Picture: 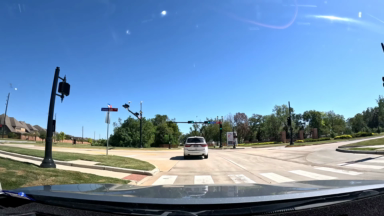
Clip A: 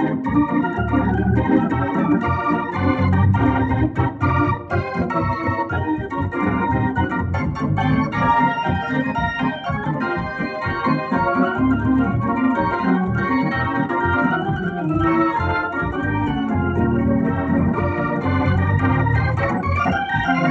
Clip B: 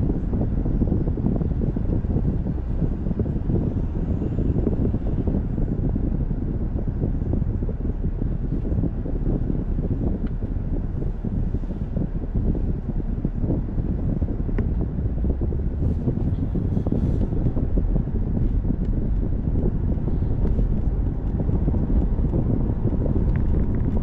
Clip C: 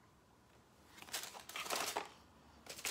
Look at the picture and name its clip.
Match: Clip B